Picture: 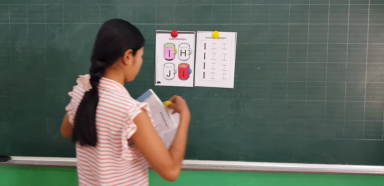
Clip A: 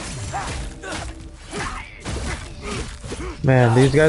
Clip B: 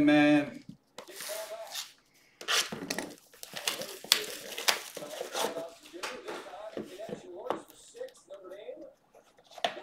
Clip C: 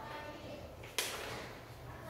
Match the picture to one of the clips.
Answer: C